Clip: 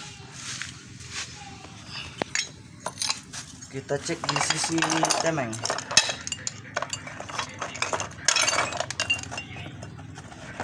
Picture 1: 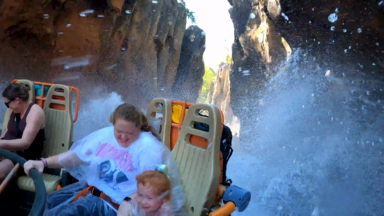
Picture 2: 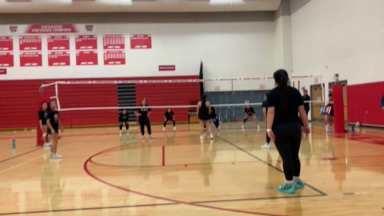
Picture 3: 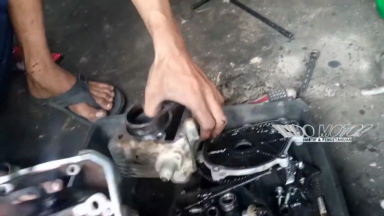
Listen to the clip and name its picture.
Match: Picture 3